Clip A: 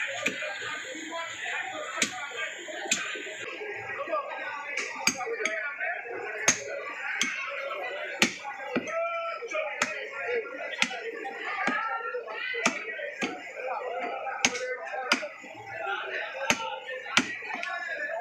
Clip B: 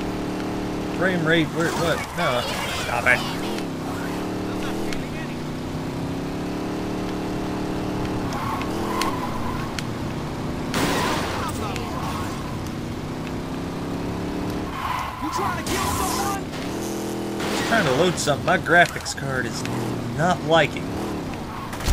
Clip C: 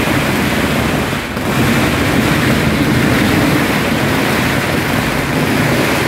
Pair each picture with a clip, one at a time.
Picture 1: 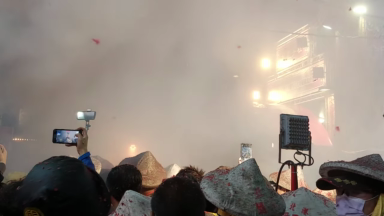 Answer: C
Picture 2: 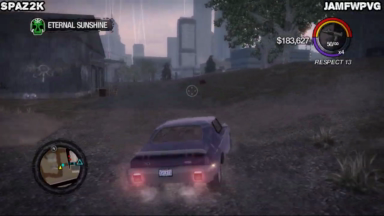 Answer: B